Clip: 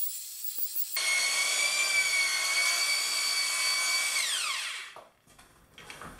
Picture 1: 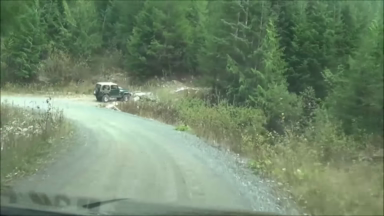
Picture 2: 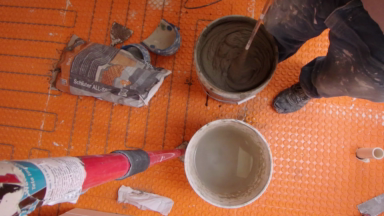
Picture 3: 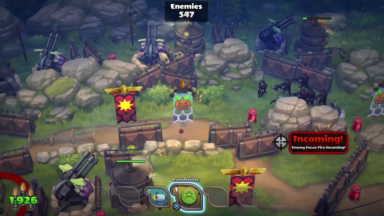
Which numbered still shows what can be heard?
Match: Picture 2